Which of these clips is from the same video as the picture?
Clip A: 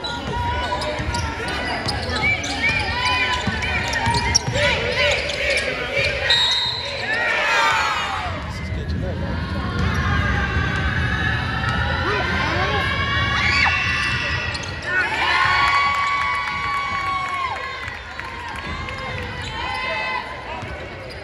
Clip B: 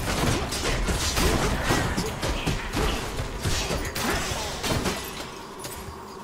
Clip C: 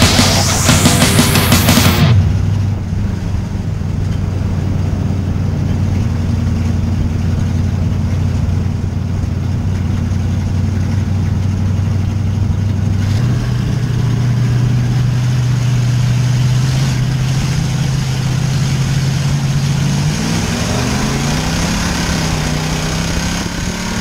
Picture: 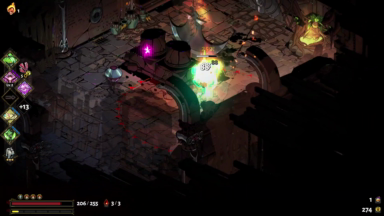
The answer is B